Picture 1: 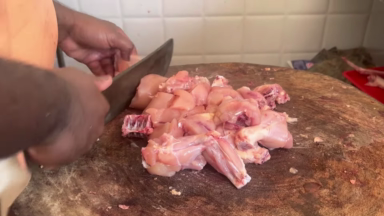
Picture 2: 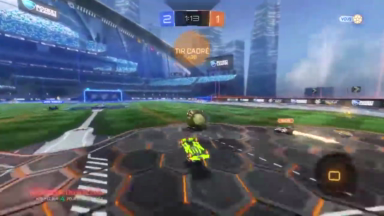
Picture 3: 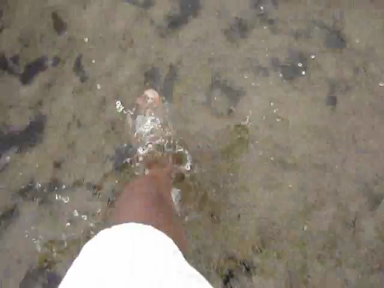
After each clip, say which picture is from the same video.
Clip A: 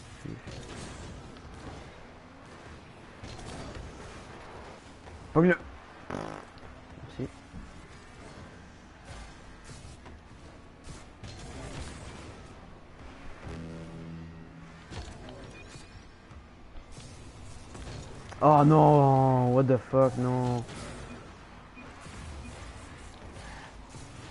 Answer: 2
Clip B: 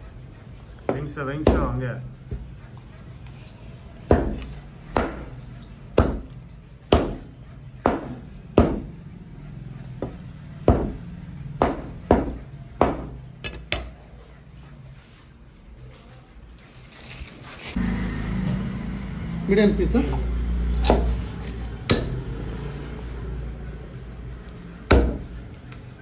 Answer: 1